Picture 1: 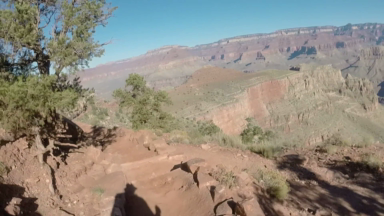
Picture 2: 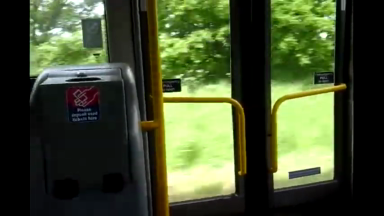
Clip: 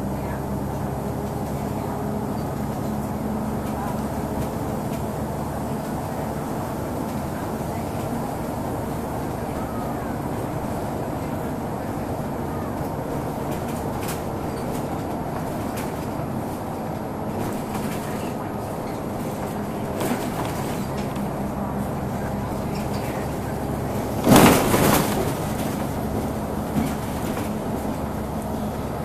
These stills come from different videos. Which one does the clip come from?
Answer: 2